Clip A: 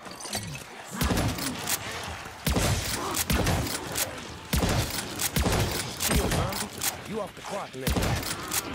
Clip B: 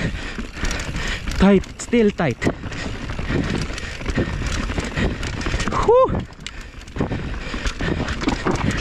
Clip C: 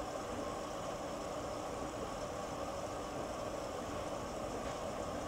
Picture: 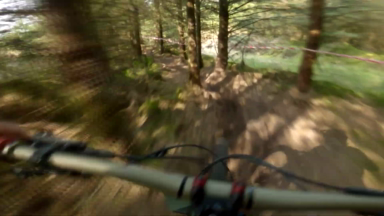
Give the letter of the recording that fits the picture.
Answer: B